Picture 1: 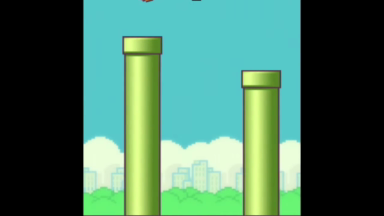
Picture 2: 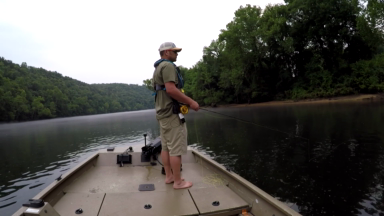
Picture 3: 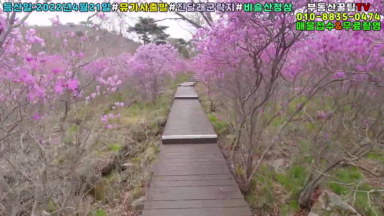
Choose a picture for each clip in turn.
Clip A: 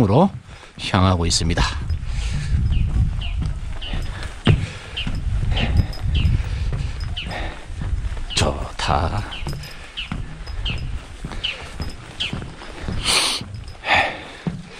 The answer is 3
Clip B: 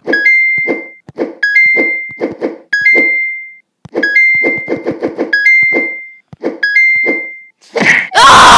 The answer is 1